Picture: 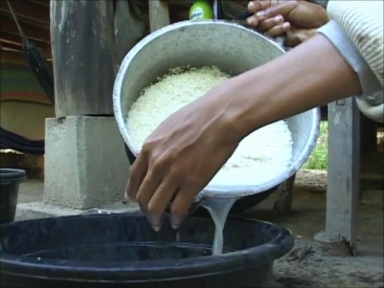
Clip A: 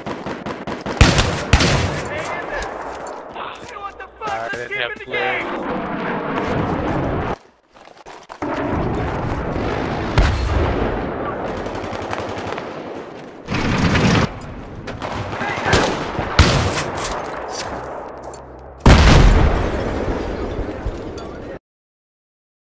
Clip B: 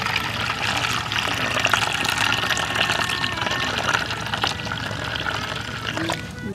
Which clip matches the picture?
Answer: B